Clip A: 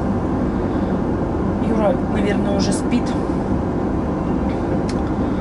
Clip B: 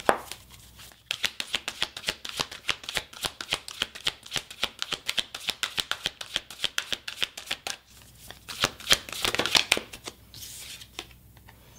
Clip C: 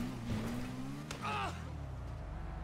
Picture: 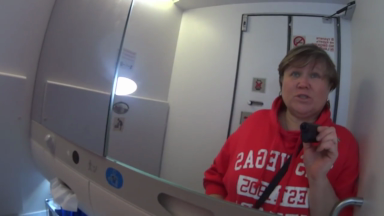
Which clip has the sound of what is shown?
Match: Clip A